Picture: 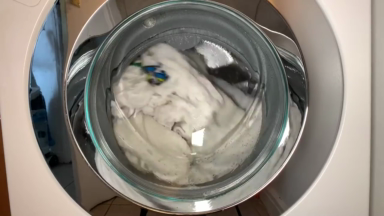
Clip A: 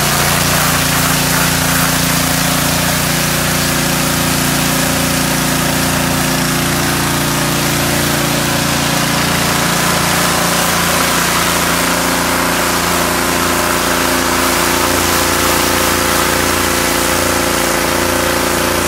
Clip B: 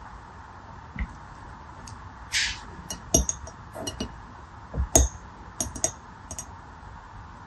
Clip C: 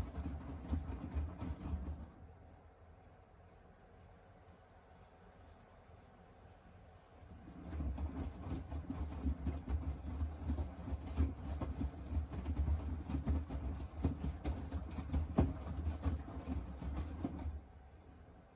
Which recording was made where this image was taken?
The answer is C